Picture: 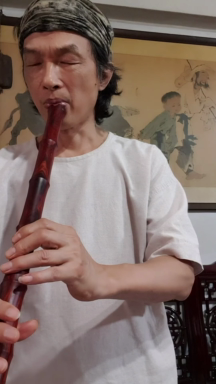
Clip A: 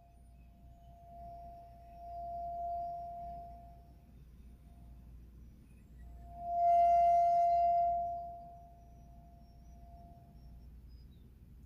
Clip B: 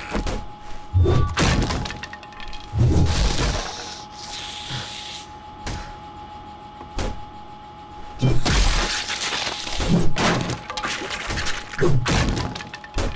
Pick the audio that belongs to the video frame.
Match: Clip A